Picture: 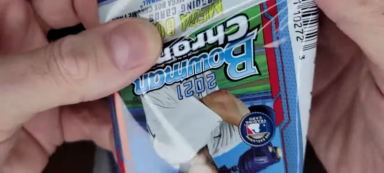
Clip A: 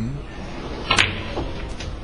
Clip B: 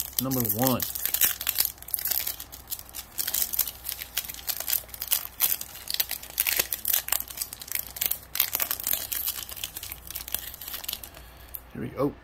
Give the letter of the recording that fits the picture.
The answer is B